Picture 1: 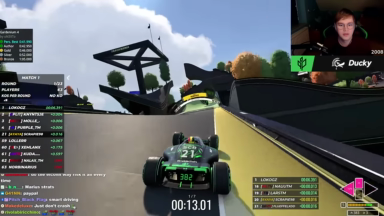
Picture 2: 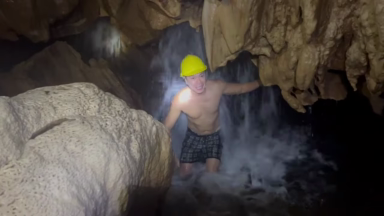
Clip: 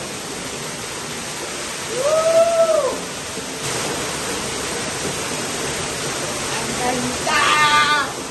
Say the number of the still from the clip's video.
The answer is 2